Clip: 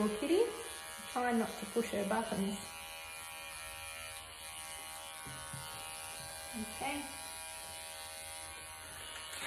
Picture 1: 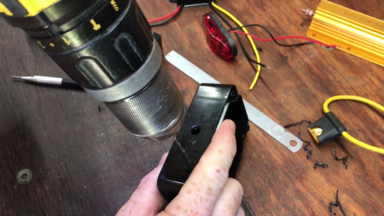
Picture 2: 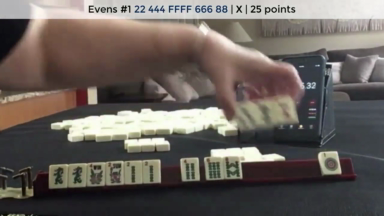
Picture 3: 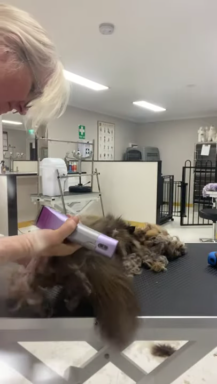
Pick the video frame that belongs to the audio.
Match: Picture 3